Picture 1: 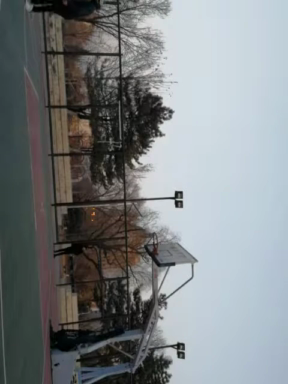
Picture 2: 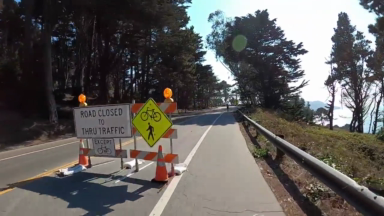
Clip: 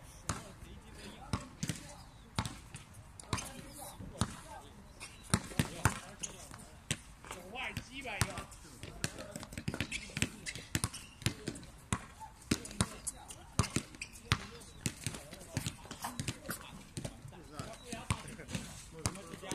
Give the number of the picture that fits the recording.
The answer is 1